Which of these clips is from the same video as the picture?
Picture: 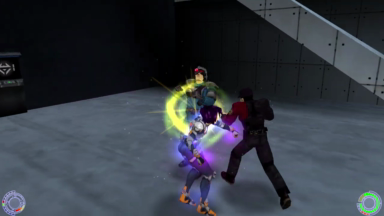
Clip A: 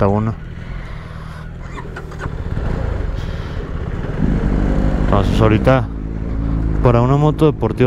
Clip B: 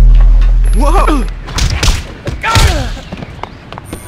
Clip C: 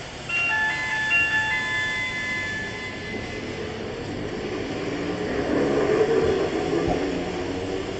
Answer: B